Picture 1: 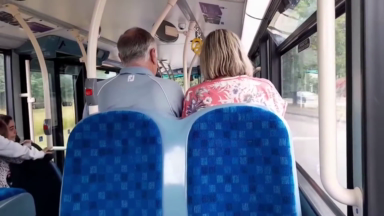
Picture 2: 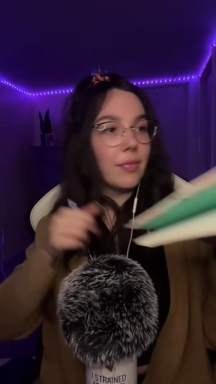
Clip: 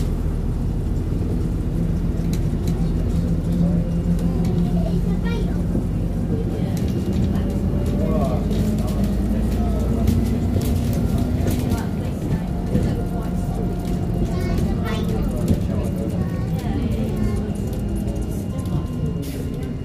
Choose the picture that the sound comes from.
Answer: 1